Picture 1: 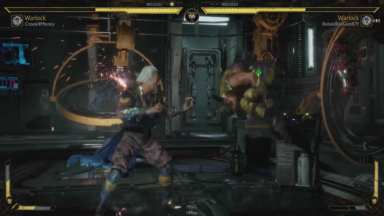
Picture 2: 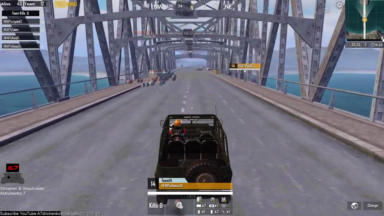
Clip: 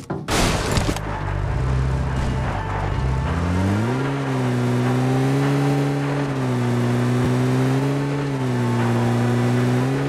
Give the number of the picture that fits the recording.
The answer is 2